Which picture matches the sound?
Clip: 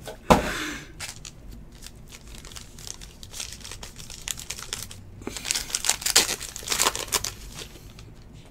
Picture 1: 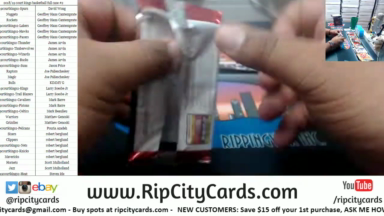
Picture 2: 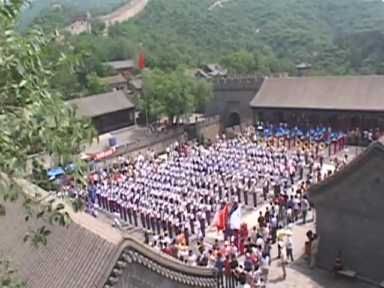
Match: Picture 1